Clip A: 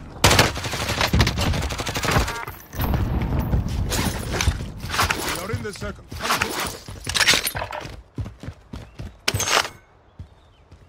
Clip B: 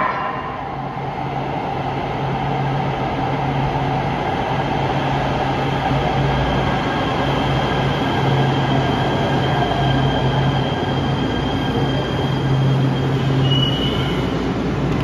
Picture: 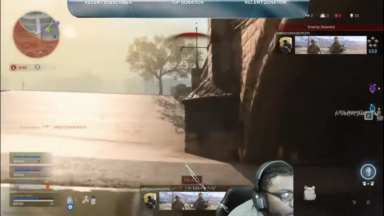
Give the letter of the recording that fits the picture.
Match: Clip A